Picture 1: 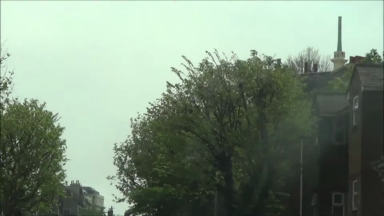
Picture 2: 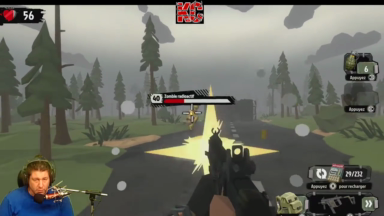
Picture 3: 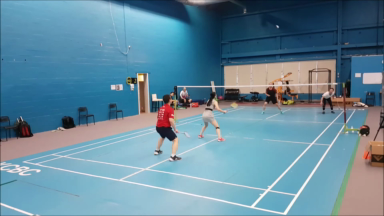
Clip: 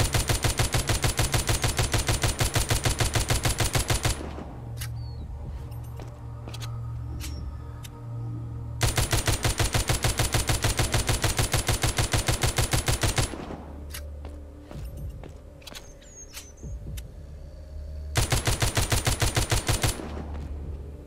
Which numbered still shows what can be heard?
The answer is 2